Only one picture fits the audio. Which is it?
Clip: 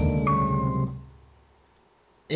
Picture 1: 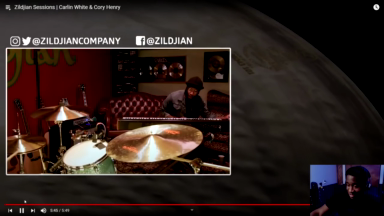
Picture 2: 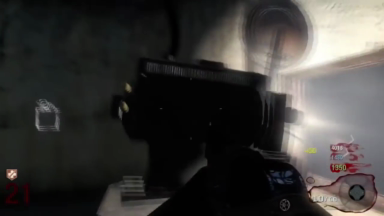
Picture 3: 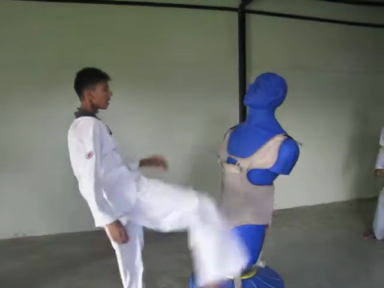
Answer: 1